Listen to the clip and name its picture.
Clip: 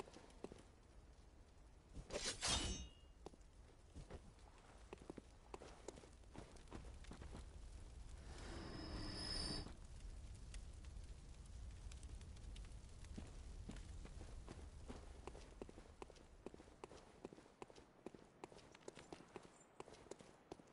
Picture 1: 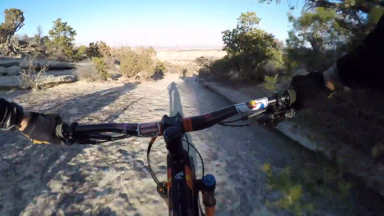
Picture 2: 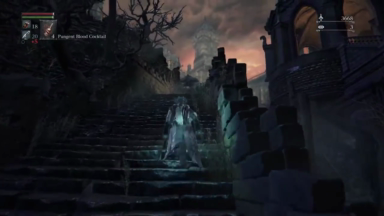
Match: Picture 2